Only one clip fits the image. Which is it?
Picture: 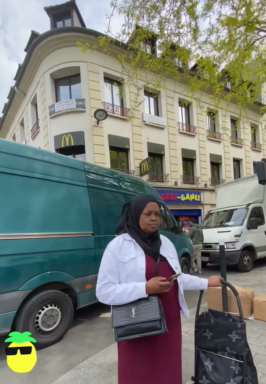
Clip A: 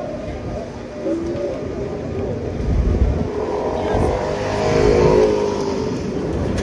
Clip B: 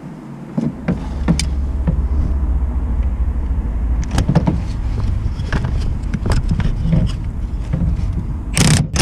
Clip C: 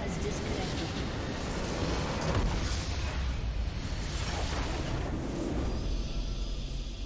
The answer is A